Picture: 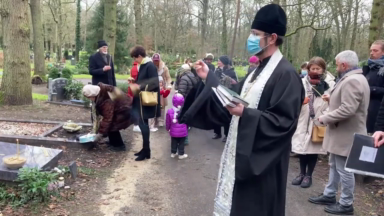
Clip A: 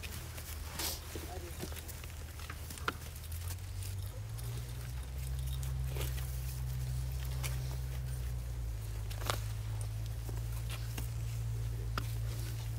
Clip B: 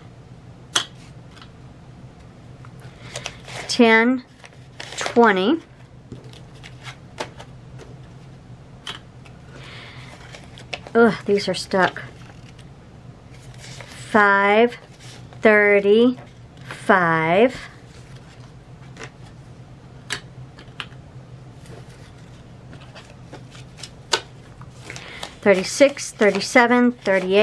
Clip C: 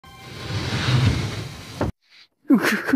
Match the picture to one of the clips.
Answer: A